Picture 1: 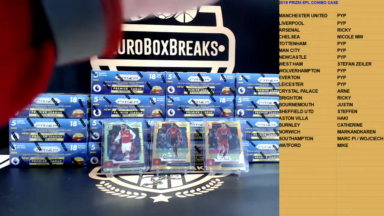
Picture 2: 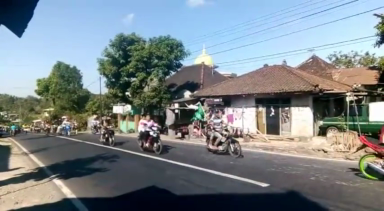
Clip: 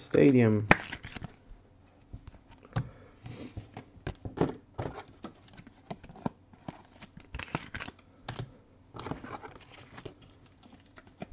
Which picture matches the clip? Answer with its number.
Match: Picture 1